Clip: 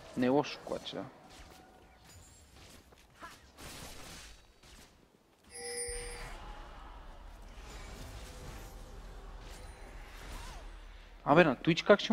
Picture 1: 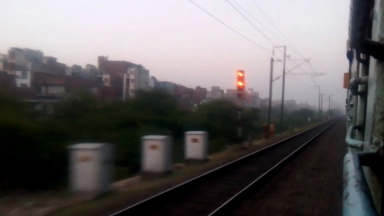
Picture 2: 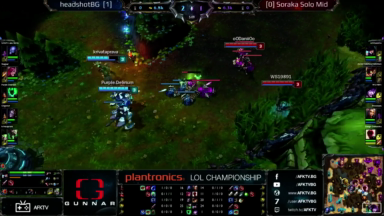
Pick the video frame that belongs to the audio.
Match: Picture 2